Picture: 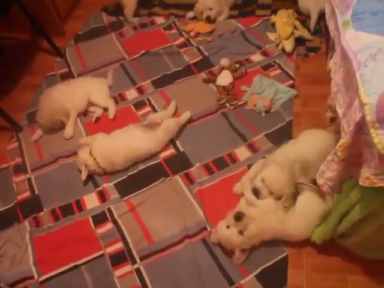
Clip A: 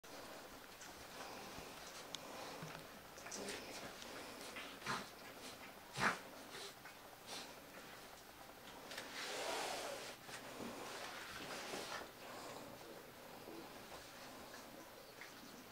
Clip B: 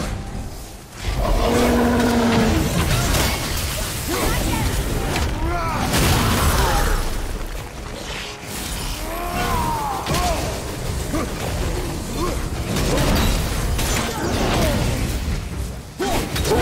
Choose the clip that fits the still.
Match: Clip A